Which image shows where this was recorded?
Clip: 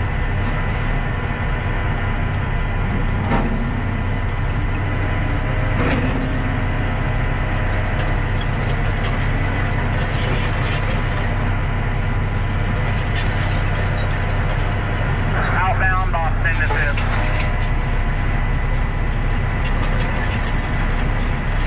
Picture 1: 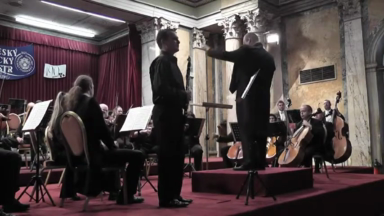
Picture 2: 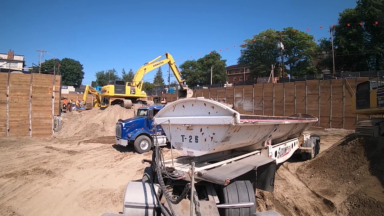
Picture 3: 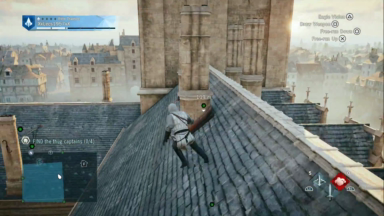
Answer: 2